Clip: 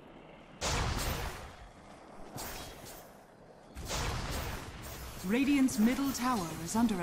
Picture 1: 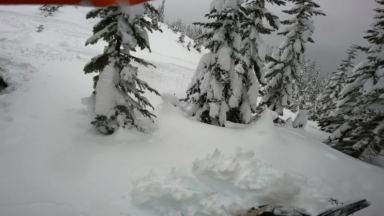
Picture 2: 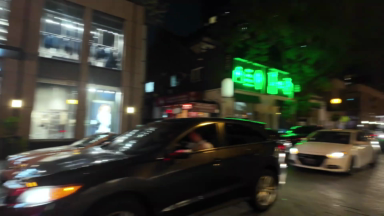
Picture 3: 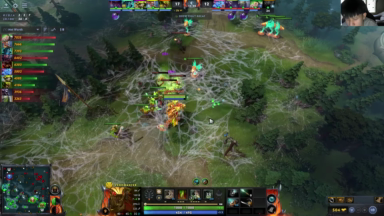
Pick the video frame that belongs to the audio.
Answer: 3